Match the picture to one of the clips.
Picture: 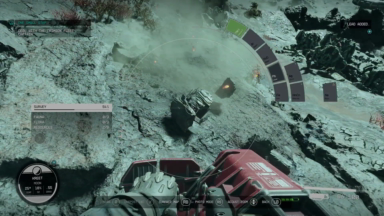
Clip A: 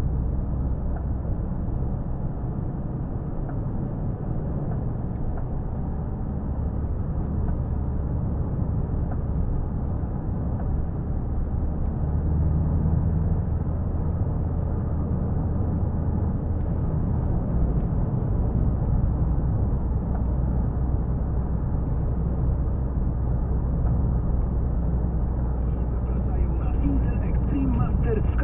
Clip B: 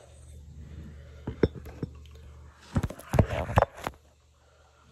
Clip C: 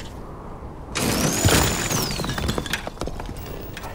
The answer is C